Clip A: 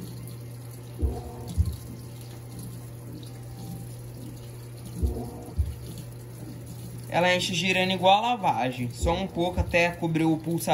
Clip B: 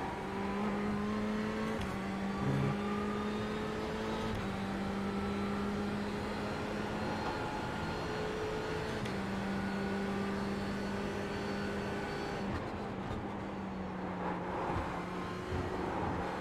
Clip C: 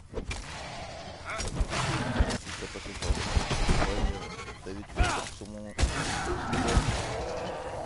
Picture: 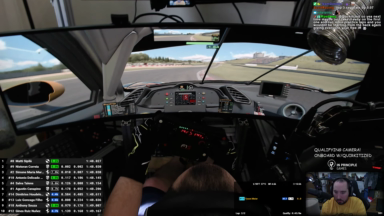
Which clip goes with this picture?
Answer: B